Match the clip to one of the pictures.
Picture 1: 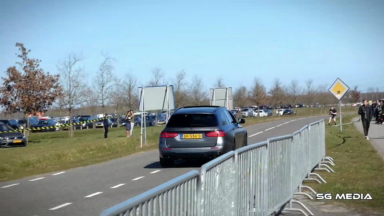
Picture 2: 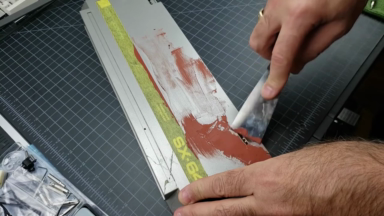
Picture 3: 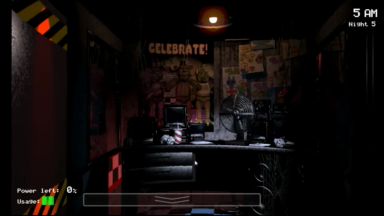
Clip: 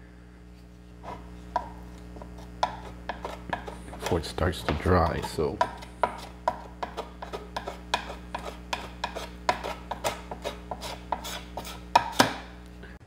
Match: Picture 2